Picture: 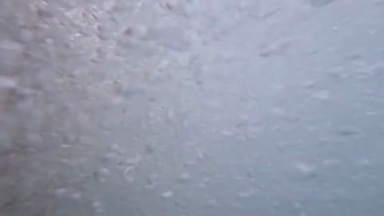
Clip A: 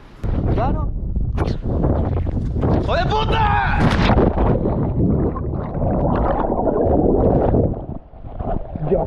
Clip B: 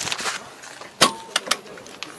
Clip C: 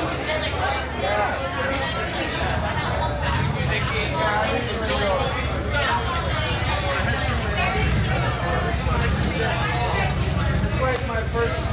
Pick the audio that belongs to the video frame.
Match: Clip A